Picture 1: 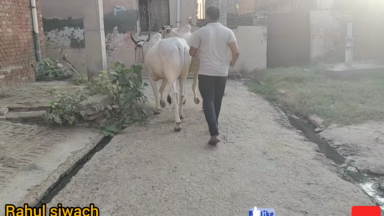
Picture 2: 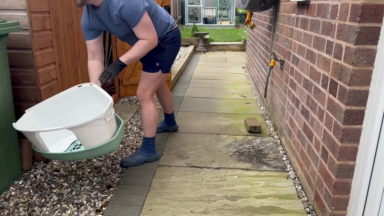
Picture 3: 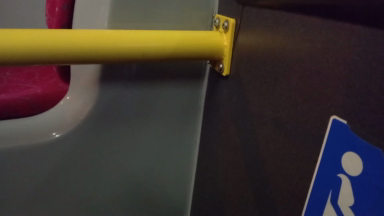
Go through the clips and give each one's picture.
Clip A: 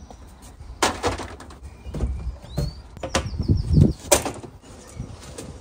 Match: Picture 2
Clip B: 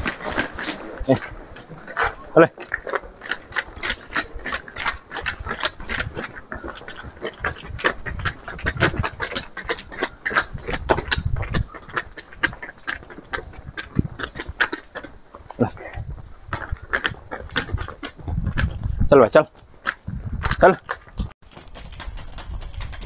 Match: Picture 1